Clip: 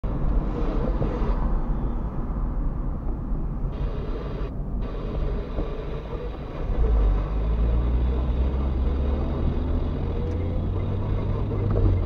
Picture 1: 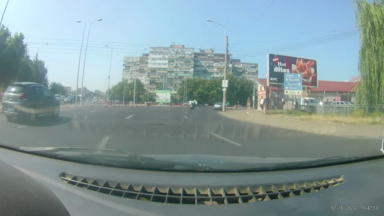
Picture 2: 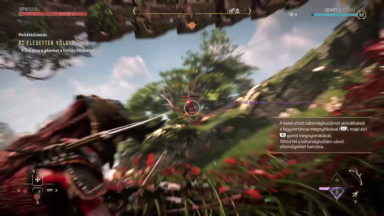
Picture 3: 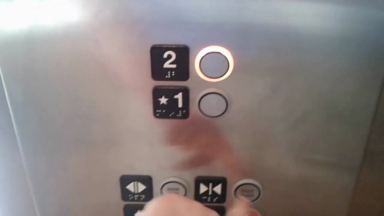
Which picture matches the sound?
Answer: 1